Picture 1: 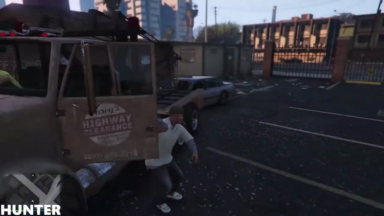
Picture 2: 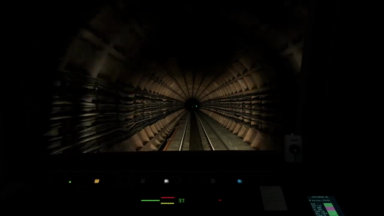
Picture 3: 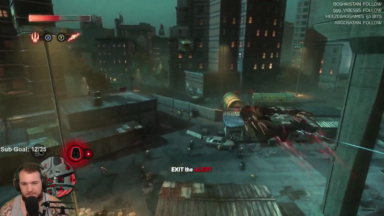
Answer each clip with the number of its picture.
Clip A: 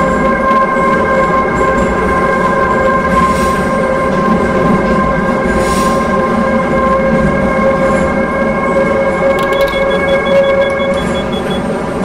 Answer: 2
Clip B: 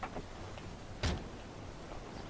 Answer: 1